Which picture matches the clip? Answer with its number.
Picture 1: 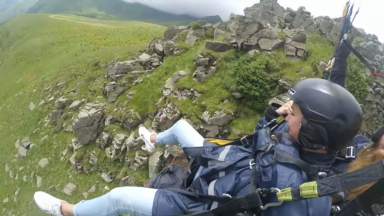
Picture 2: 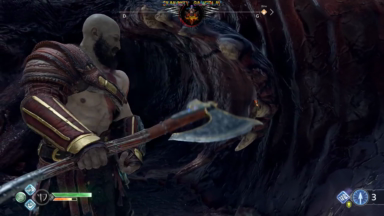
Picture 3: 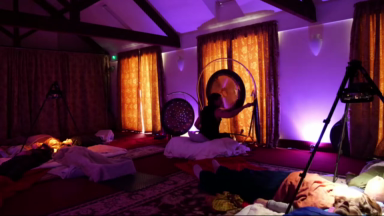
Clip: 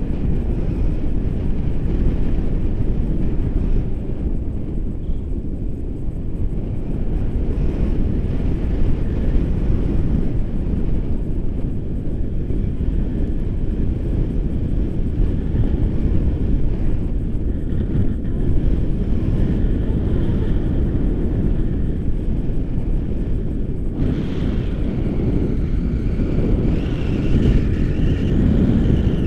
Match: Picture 1